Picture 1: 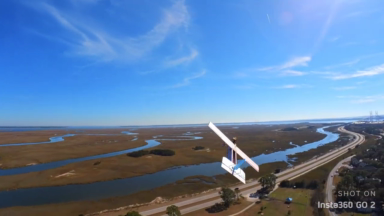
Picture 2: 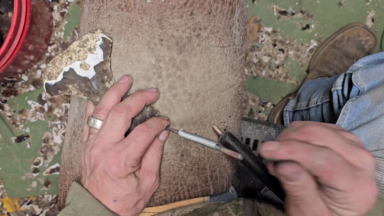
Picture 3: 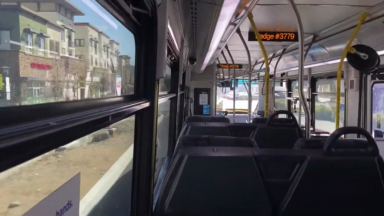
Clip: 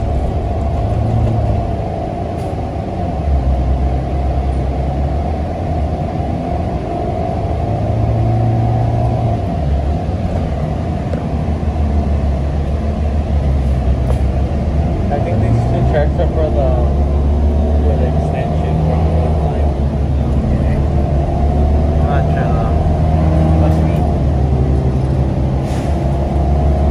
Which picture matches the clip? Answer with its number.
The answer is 3